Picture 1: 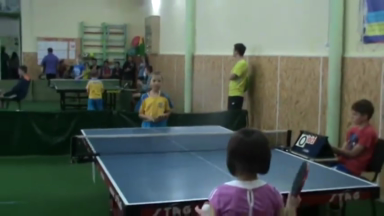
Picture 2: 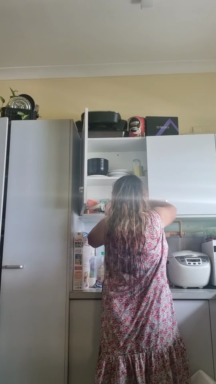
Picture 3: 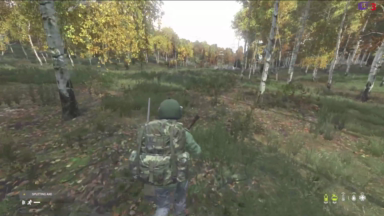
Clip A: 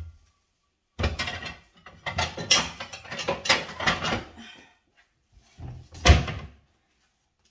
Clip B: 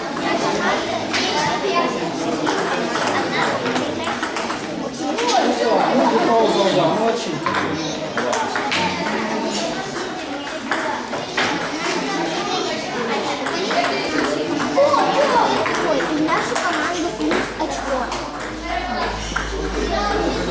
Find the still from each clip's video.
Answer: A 2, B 1